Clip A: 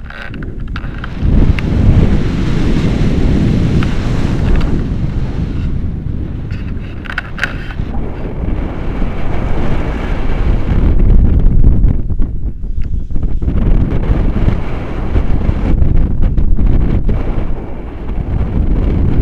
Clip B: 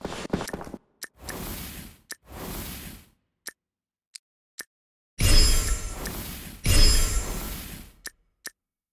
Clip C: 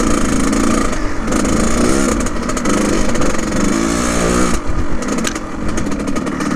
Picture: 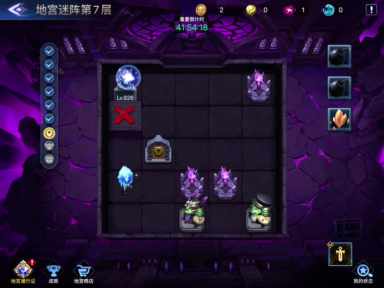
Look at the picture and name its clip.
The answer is B